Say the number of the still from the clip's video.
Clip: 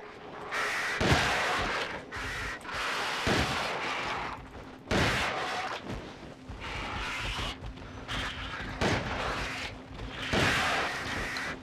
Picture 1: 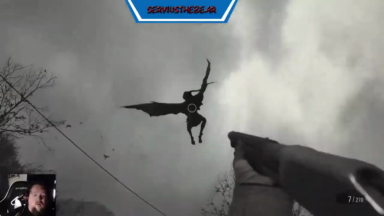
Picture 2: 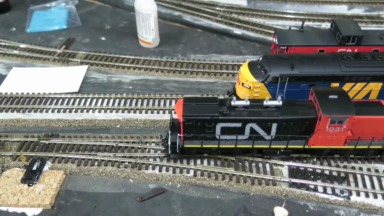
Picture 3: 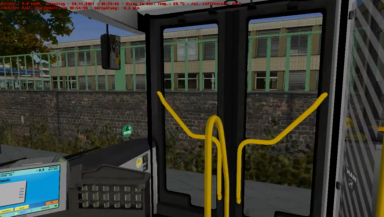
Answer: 1